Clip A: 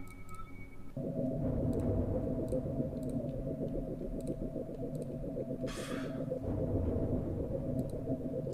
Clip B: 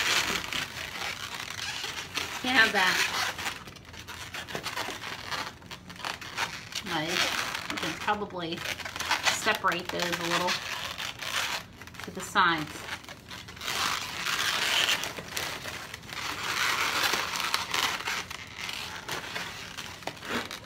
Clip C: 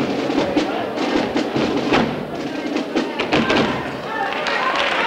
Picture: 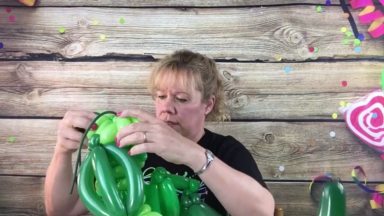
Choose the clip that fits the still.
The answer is B